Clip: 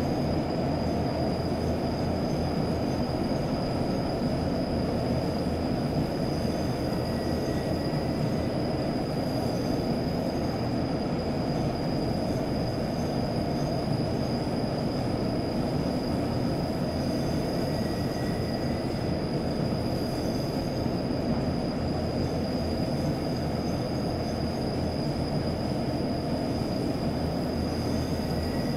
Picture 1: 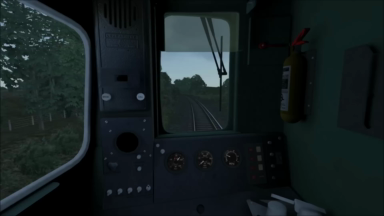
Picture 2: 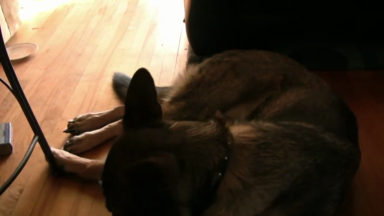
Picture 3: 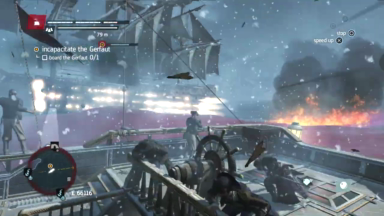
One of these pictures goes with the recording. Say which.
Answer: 1